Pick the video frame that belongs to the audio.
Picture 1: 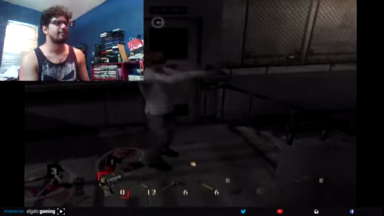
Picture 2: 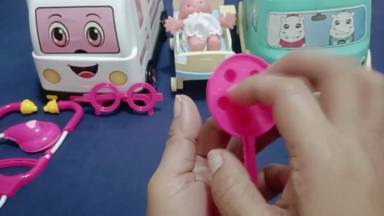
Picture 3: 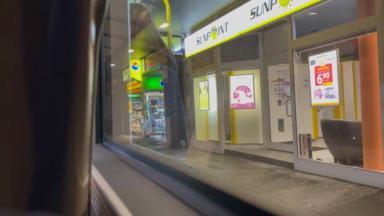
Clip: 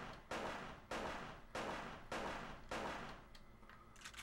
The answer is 1